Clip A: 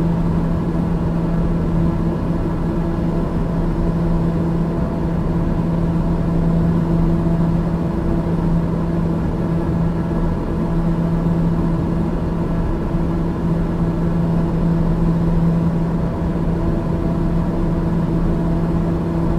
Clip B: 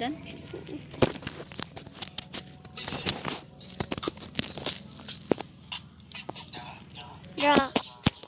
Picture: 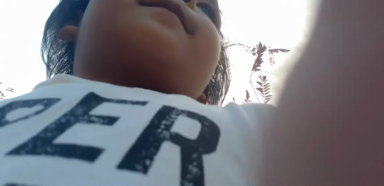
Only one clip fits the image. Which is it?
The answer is B